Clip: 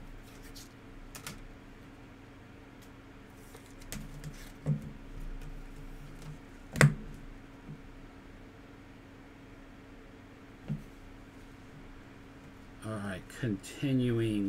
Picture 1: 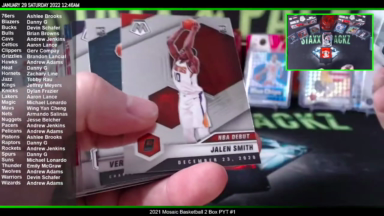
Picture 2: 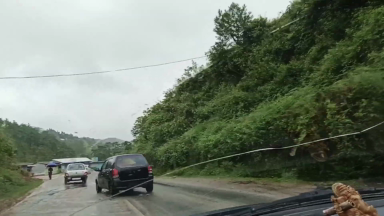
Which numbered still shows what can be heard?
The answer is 1